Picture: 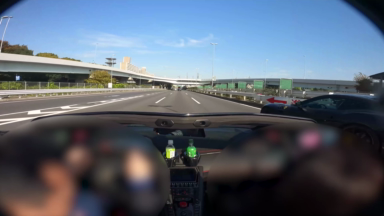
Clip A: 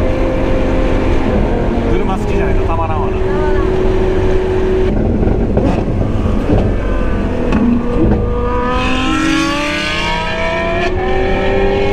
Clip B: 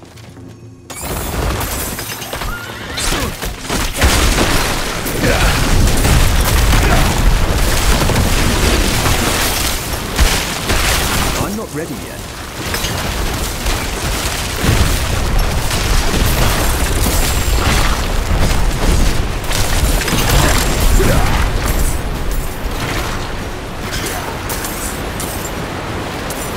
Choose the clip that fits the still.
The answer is A